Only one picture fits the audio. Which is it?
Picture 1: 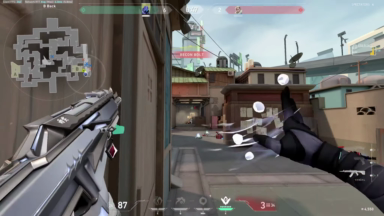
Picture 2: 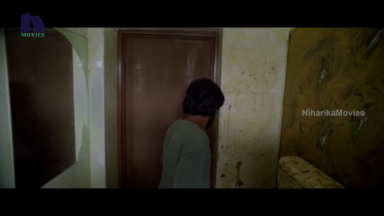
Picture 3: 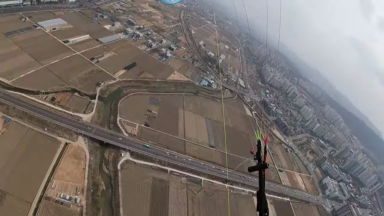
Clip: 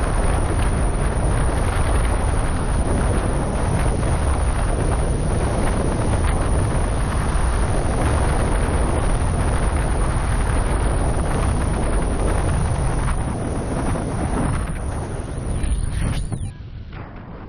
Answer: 3